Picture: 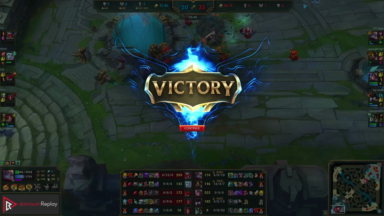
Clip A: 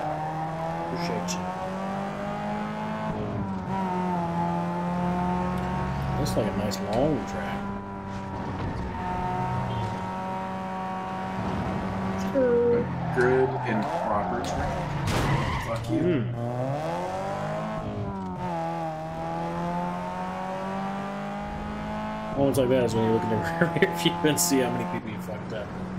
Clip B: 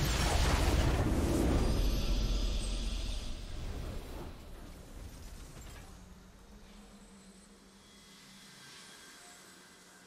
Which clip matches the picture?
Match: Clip B